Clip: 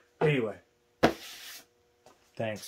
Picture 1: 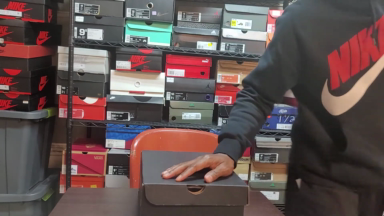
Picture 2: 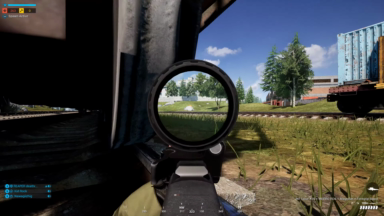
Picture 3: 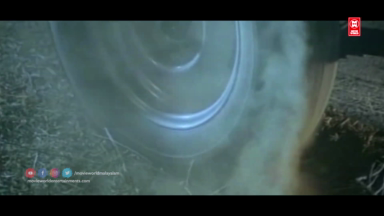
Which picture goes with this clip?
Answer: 1